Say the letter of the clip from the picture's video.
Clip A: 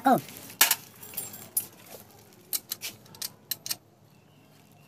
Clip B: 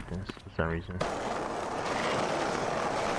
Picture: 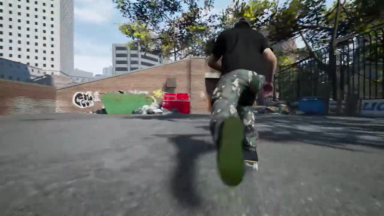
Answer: B